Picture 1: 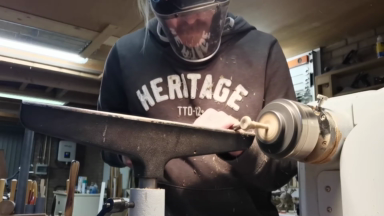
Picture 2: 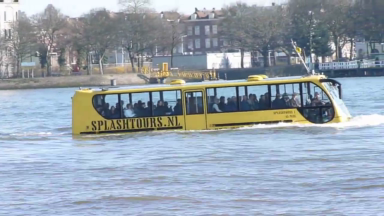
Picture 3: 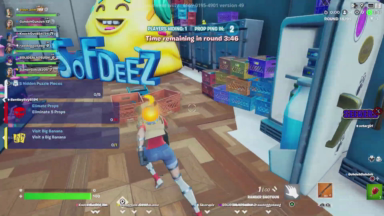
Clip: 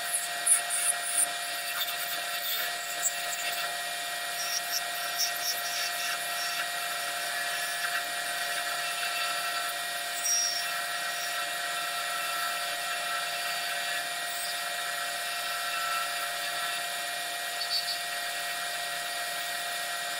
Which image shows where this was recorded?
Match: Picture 1